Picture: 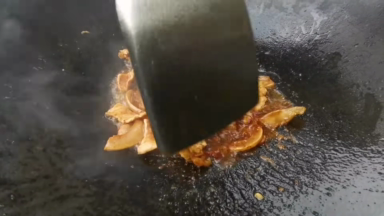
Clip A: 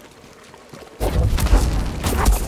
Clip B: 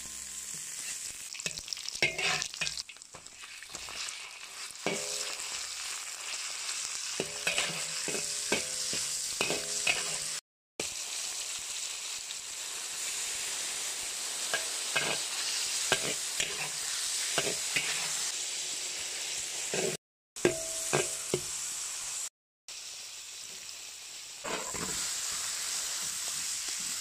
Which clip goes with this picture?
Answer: B